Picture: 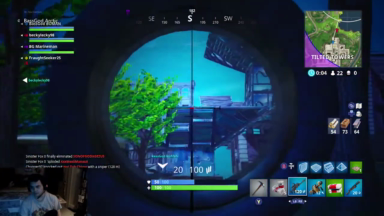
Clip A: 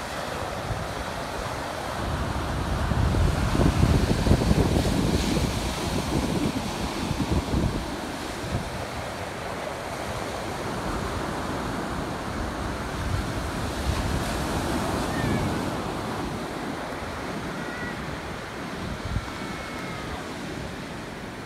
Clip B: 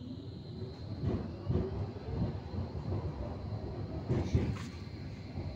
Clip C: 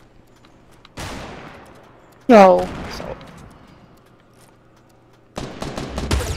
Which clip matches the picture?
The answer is C